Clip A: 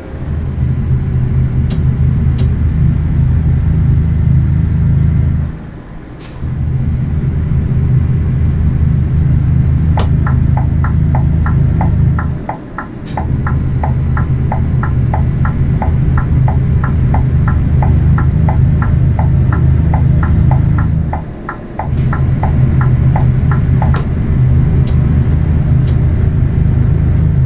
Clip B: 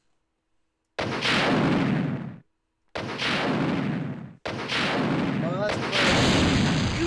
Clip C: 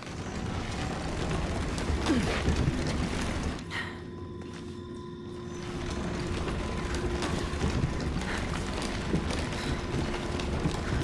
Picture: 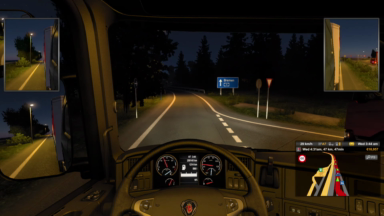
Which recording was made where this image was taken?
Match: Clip A